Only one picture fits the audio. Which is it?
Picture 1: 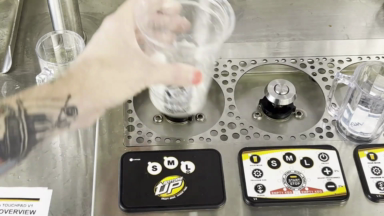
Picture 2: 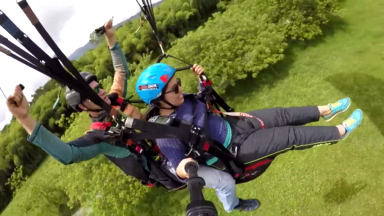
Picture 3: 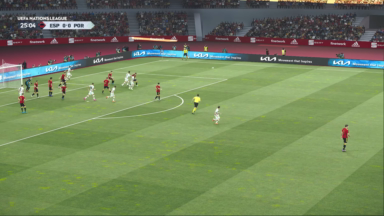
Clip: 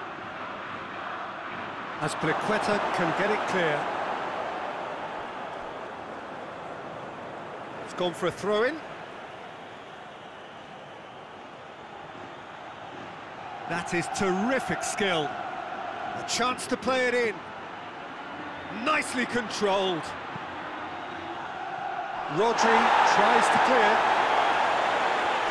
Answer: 3